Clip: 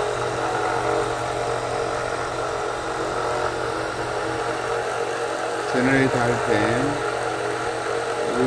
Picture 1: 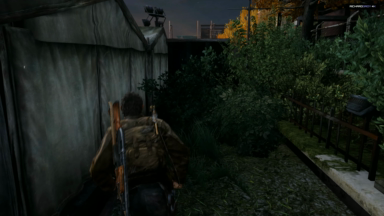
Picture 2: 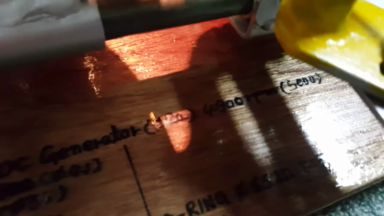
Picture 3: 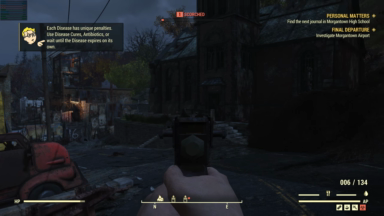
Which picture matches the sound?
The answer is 2